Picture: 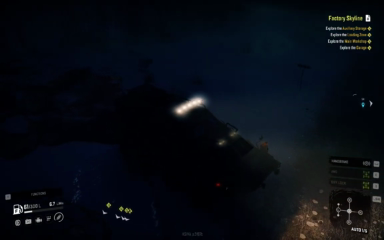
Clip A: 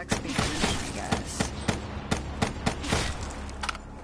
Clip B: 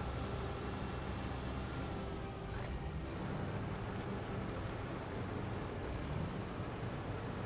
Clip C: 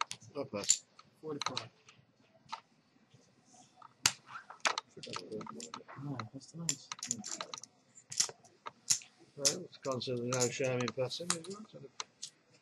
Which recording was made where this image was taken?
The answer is B